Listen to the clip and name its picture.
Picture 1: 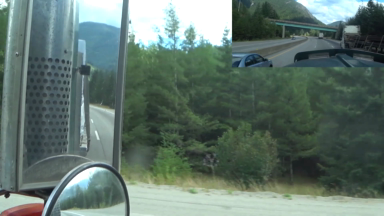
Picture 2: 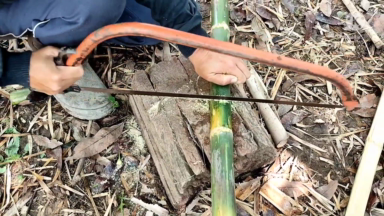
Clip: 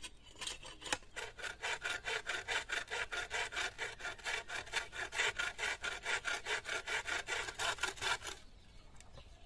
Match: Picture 2